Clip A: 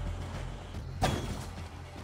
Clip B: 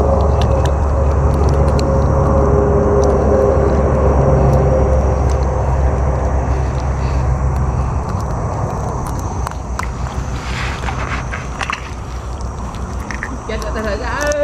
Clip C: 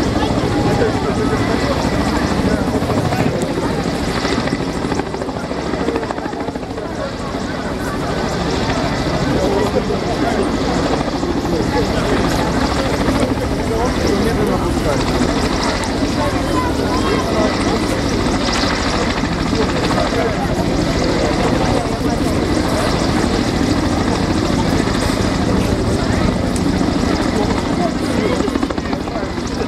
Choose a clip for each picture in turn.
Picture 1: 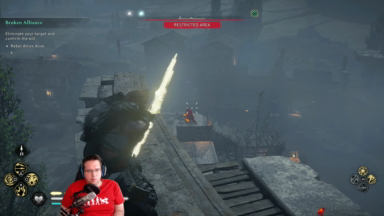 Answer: A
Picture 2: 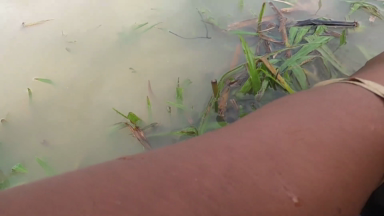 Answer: B